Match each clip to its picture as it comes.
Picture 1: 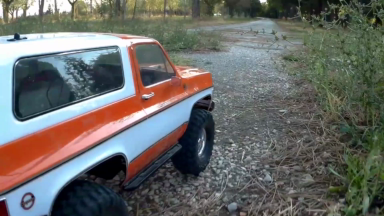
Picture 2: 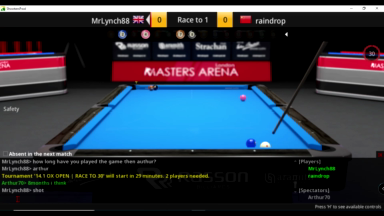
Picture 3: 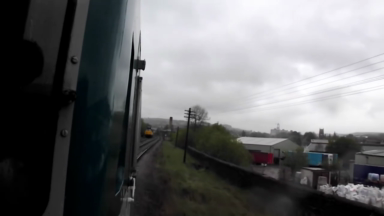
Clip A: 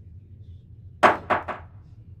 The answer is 2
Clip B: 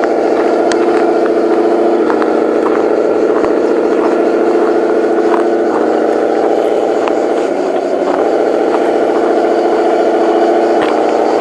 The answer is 1